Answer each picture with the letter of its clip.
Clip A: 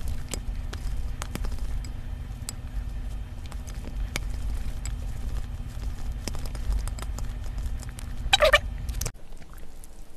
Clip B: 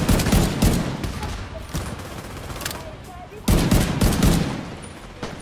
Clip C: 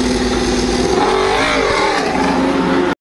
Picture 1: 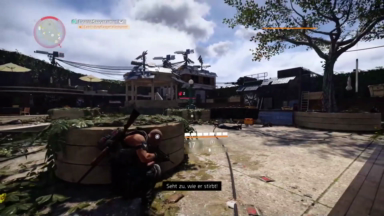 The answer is B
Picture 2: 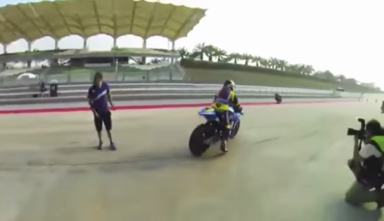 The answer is C